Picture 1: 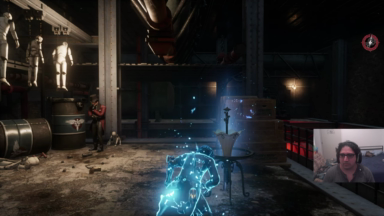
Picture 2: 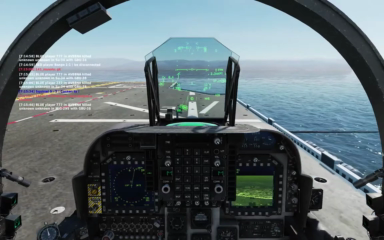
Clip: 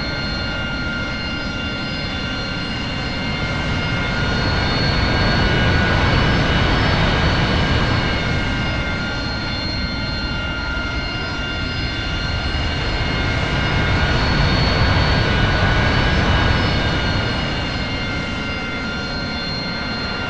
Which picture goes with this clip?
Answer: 2